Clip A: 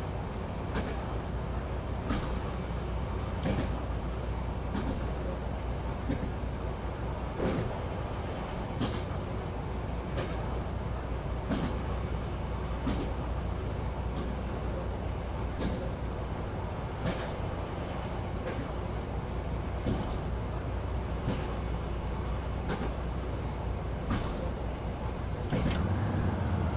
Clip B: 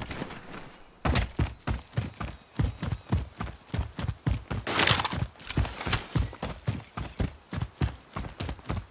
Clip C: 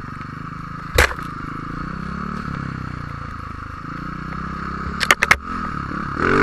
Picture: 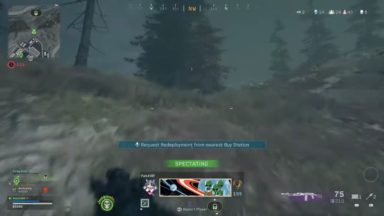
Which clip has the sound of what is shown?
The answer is B